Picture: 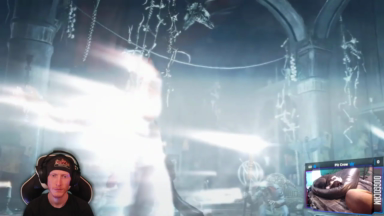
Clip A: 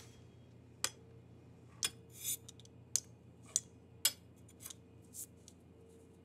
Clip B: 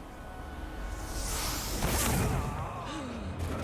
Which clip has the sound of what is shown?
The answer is B